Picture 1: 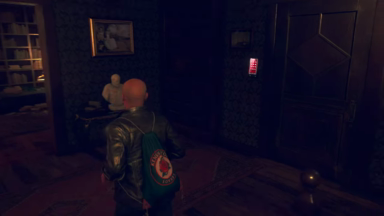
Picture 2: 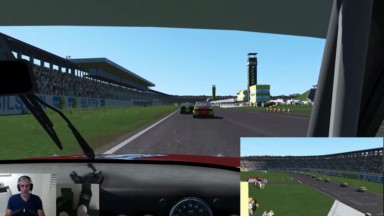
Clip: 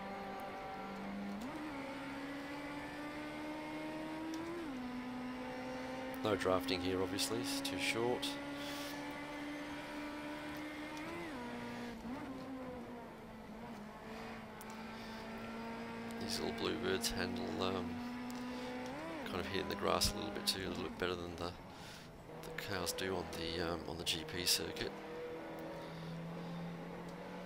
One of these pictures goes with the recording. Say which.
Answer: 2